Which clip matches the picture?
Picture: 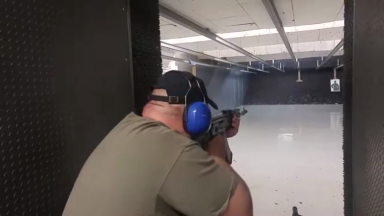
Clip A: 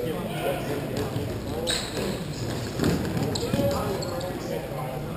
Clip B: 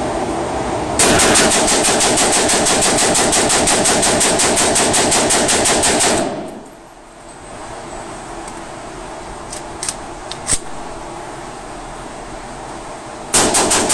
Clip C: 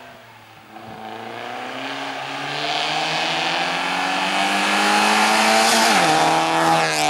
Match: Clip B